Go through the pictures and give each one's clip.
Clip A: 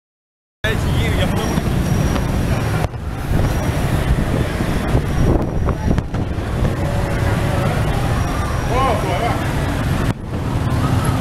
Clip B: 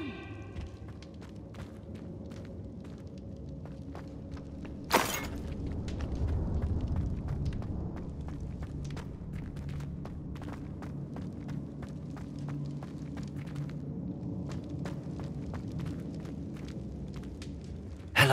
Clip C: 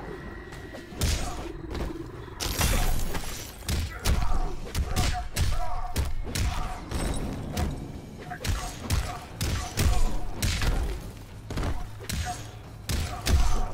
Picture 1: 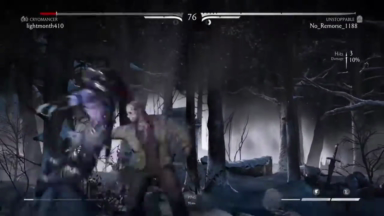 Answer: C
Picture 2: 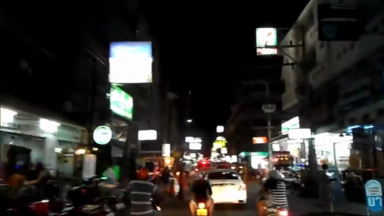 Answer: A